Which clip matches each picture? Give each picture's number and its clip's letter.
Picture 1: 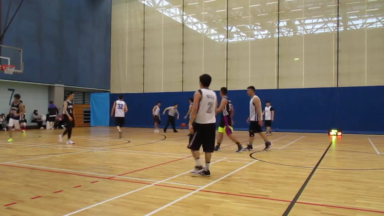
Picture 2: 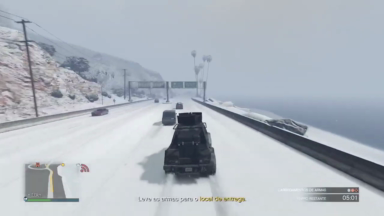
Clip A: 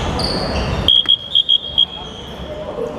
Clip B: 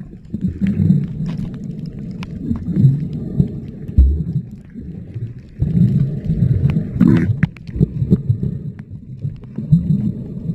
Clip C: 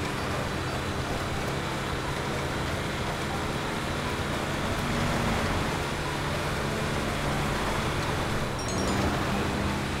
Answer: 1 A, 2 C